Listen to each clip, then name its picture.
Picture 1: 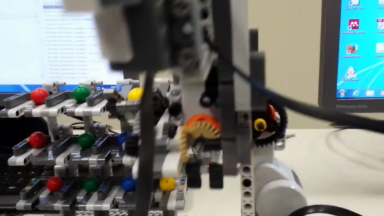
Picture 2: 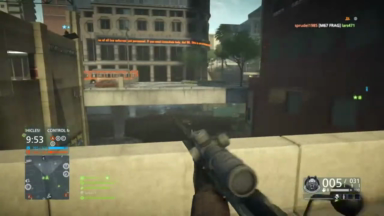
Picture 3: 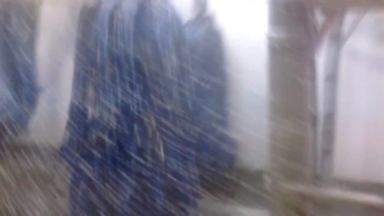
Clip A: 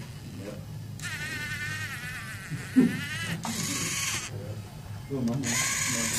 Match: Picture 1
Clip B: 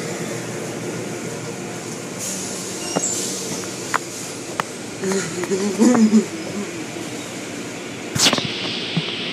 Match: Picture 3